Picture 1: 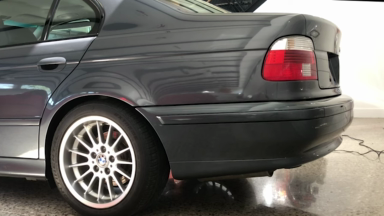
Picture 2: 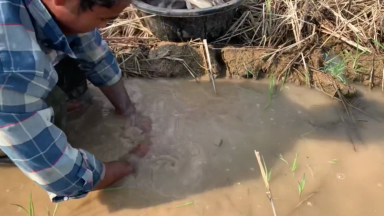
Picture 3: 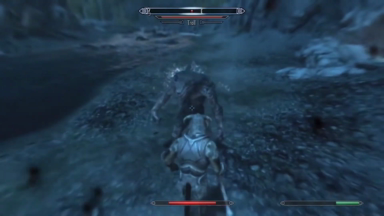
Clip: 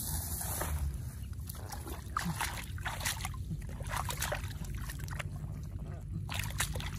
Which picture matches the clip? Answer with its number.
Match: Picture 2